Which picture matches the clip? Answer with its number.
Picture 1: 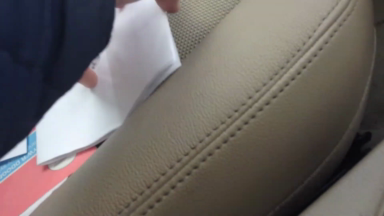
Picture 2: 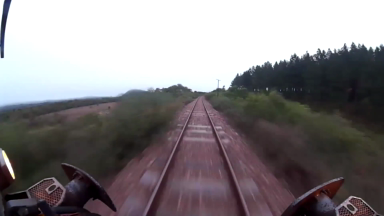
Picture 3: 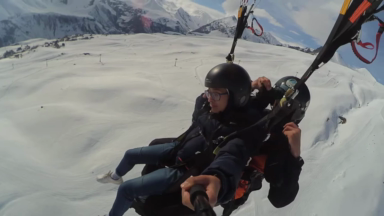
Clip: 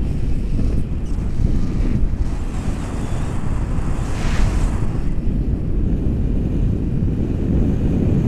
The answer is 3